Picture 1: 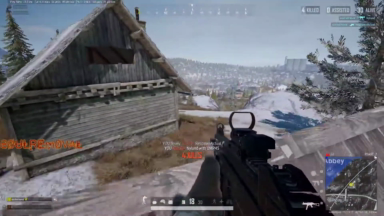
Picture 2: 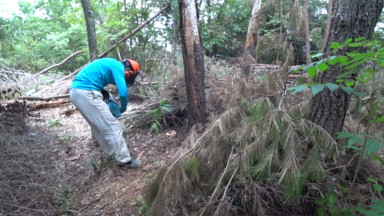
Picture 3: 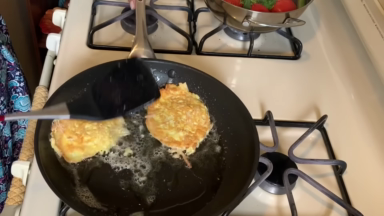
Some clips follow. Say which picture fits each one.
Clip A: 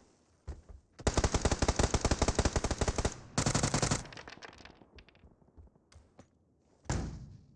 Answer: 1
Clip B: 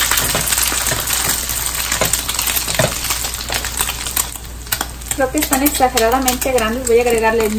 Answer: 3